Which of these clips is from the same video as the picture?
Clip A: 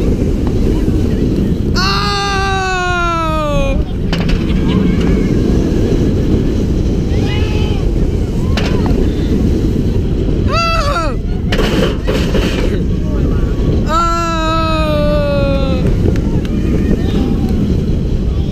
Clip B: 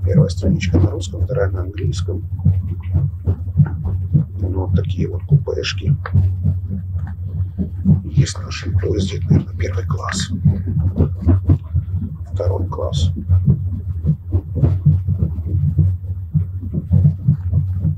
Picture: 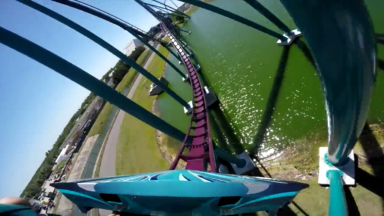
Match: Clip A